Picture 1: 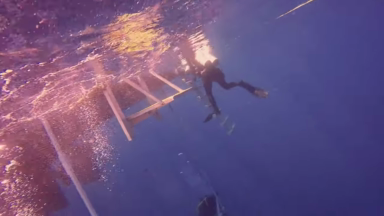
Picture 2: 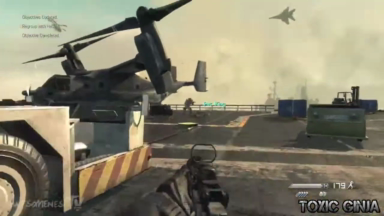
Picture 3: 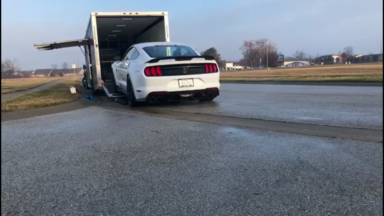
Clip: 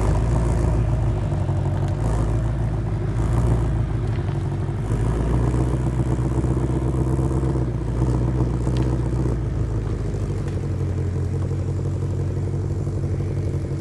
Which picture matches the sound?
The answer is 3